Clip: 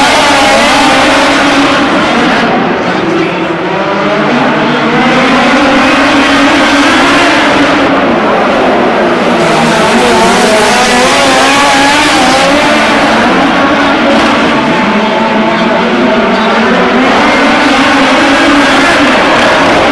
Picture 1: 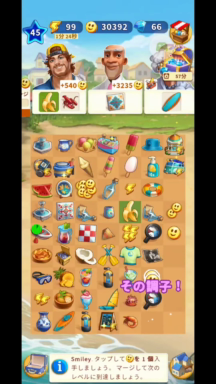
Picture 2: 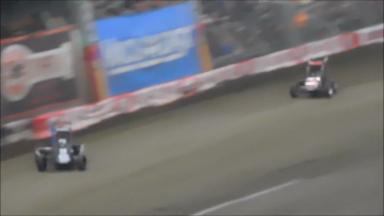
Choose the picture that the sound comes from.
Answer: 2